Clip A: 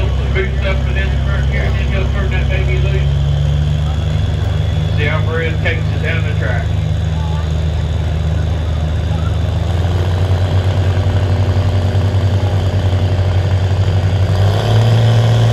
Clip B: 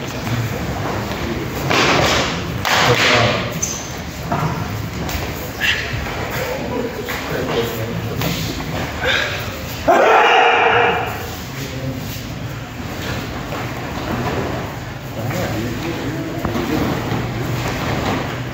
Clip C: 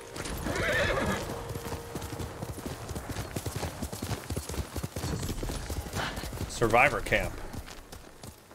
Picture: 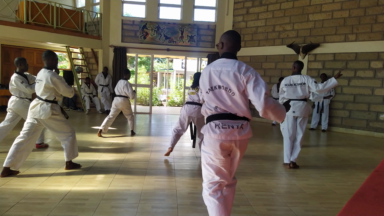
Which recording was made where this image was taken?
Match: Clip B